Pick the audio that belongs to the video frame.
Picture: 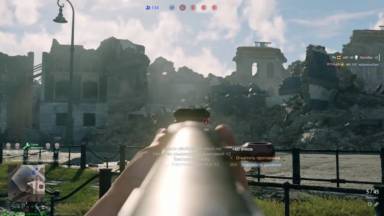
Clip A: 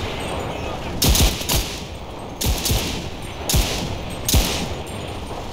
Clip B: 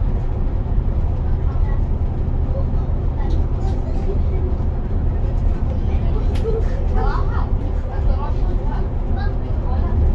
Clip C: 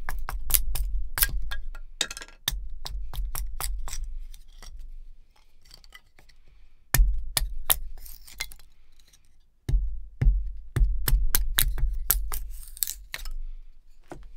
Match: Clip A